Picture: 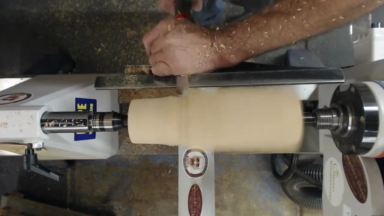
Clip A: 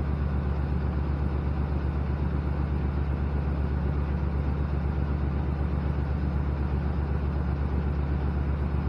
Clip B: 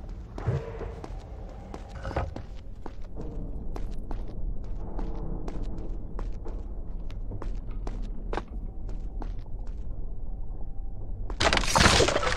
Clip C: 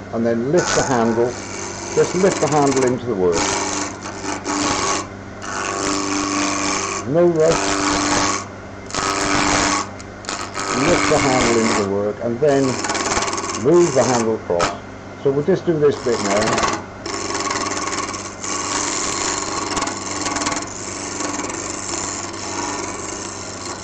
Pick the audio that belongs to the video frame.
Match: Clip C